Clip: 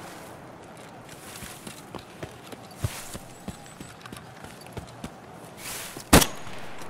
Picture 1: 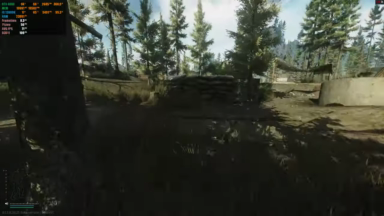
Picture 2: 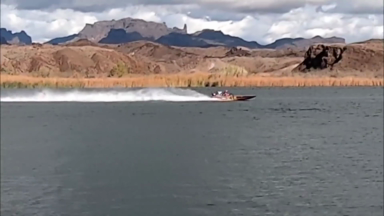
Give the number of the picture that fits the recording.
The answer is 1